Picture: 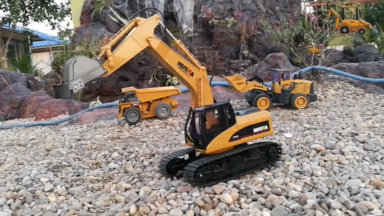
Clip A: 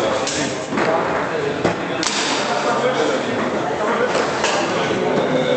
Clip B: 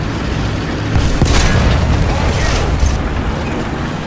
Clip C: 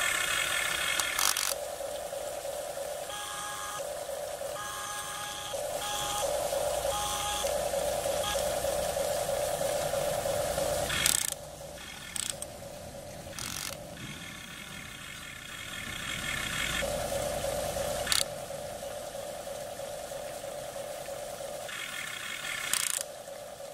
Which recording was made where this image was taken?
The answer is C